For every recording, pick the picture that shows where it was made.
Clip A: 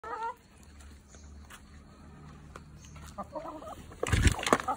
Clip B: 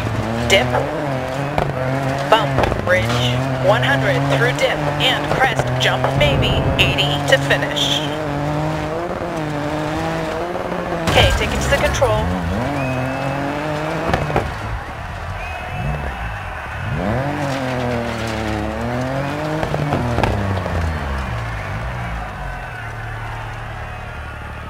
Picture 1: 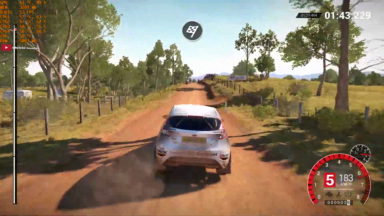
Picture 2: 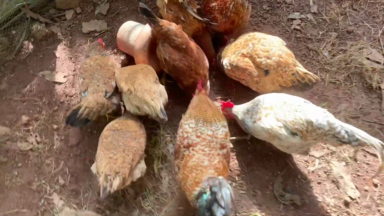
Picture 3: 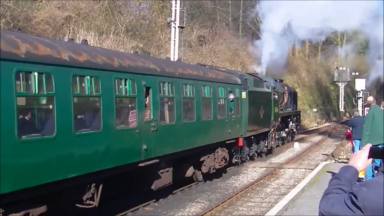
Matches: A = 2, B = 1